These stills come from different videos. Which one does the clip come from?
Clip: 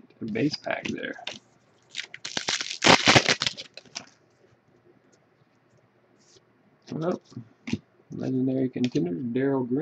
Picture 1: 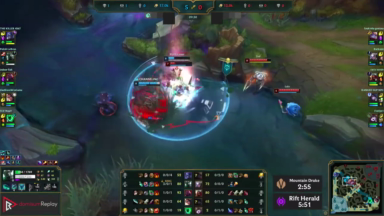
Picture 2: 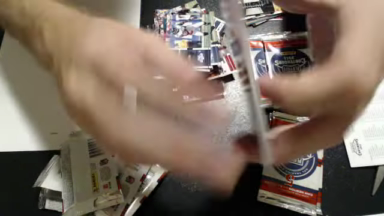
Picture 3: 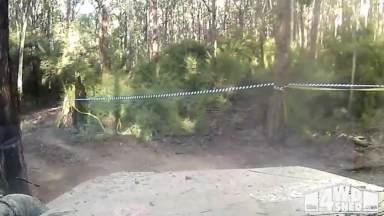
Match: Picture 2